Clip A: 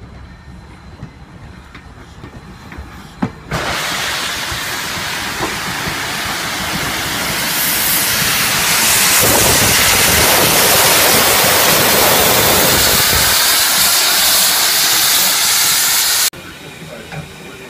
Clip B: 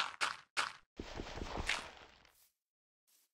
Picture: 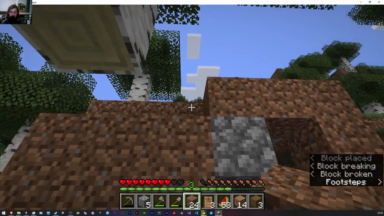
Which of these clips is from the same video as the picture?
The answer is B